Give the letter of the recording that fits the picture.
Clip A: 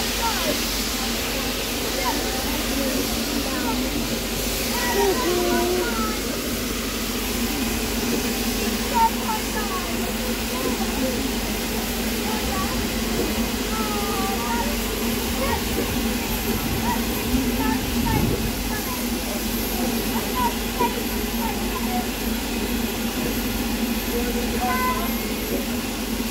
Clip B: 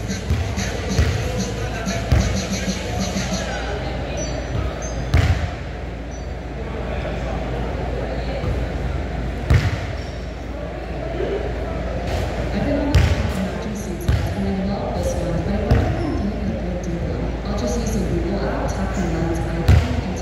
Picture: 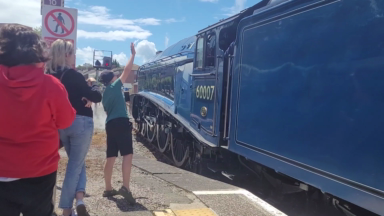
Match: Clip A